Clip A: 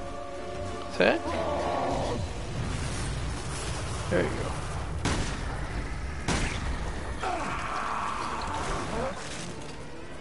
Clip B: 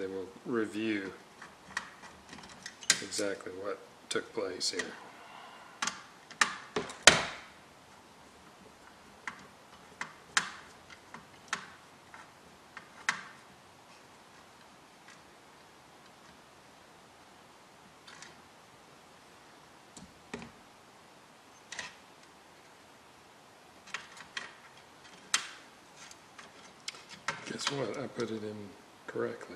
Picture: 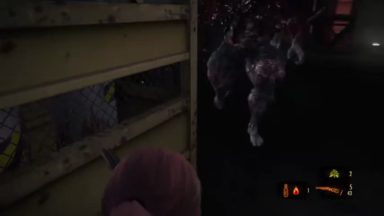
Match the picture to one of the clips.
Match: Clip A